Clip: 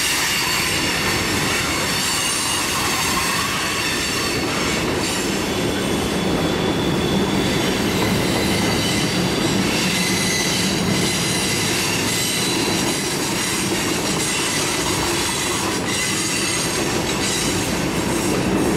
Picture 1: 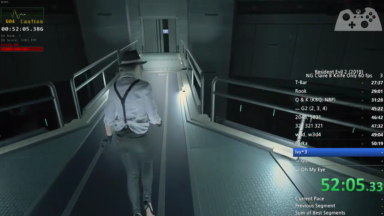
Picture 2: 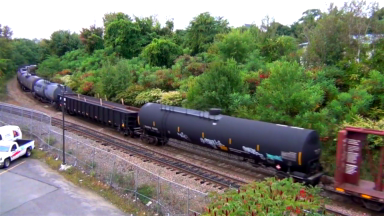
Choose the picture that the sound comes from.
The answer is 2